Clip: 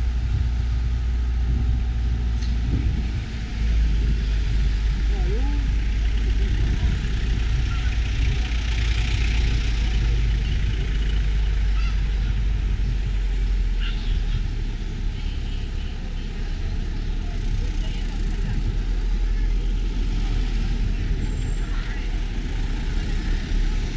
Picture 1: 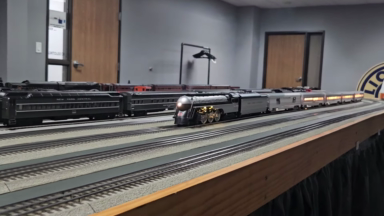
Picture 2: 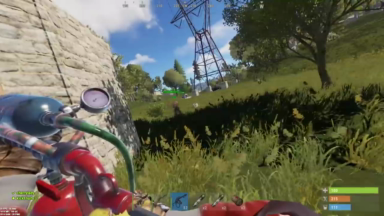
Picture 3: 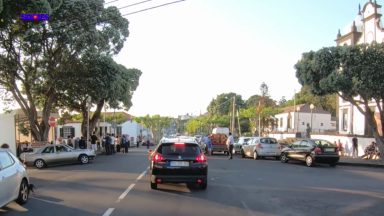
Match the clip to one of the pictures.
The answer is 3